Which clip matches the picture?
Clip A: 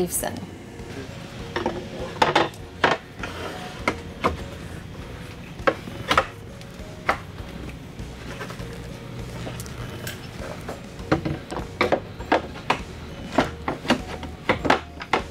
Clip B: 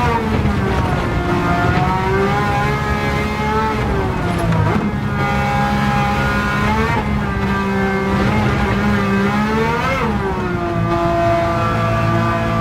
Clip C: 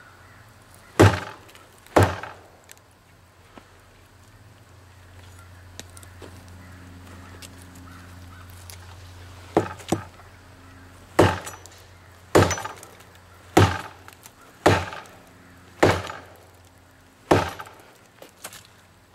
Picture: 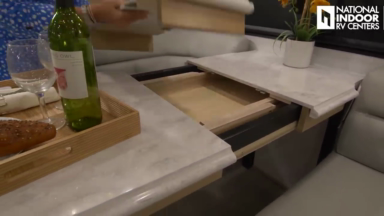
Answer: A